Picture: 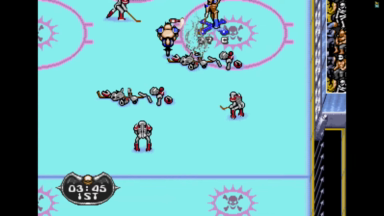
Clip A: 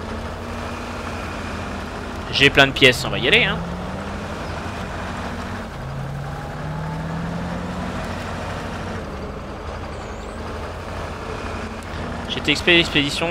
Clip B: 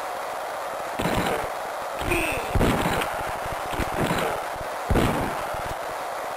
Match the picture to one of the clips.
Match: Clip B